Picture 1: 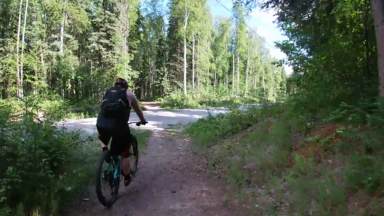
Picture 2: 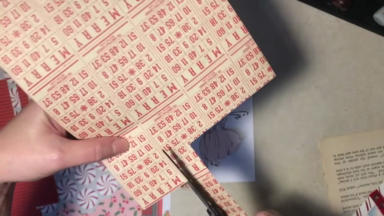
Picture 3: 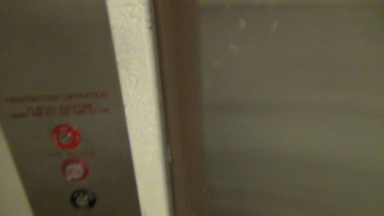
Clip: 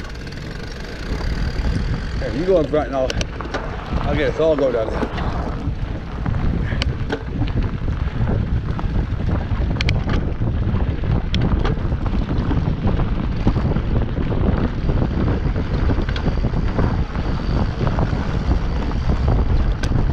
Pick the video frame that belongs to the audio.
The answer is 1